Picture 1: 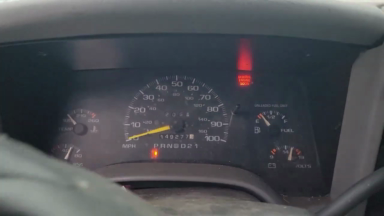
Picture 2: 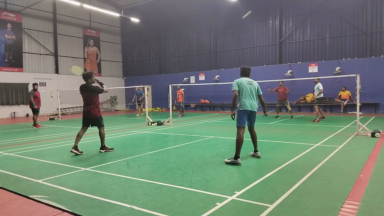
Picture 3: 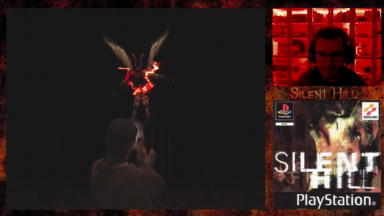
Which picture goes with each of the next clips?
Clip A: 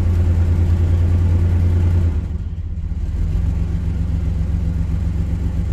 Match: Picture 1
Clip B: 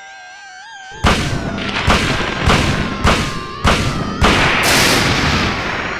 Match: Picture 3